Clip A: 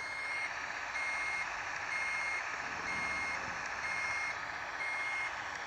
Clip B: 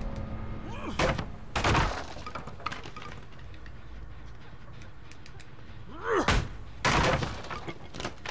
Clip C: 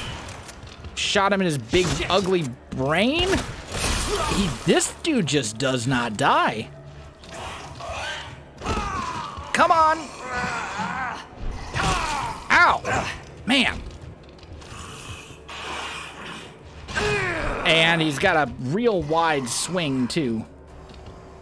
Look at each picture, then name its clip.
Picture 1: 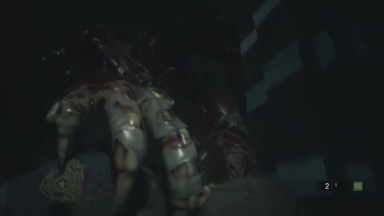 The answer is C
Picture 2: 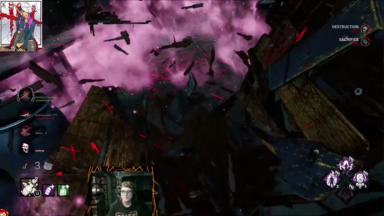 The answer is B